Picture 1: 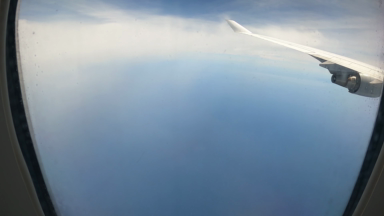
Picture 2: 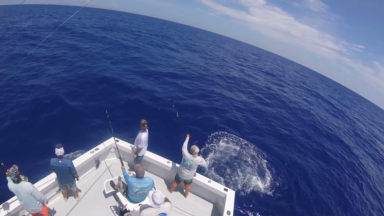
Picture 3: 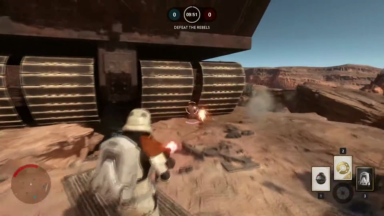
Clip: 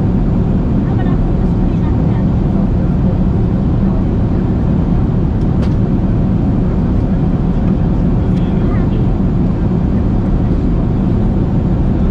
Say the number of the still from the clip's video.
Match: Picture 1